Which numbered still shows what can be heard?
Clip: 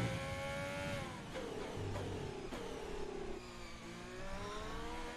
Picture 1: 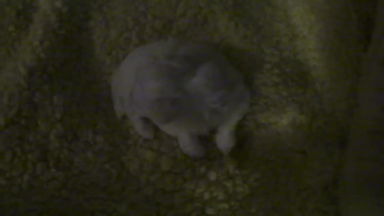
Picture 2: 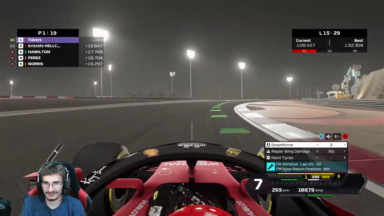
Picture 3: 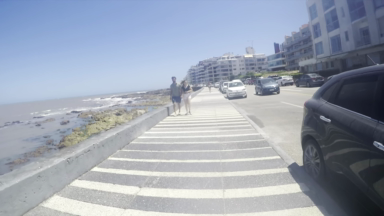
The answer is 2